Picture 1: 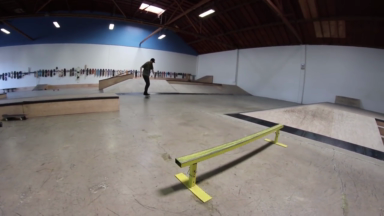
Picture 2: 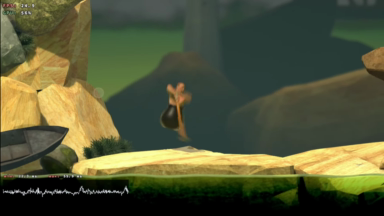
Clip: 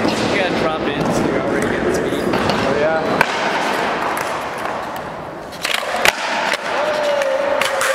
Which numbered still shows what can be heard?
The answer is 1